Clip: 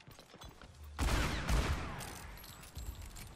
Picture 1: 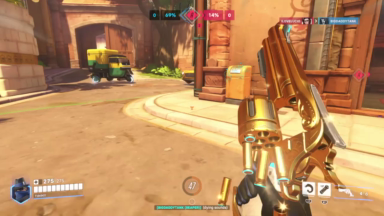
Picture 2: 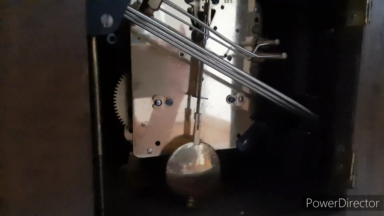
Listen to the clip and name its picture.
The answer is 1